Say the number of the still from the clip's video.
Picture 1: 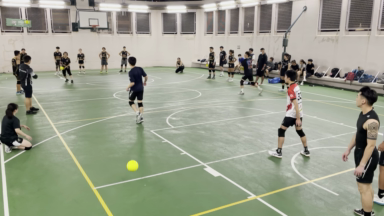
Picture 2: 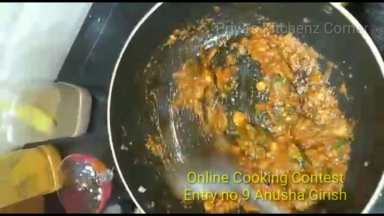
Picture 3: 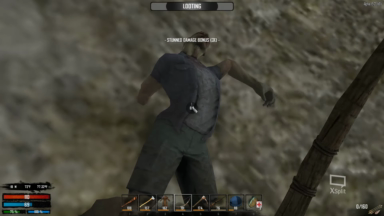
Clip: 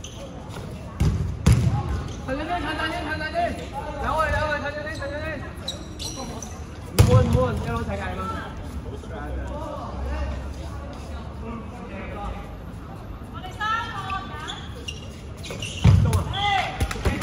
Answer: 1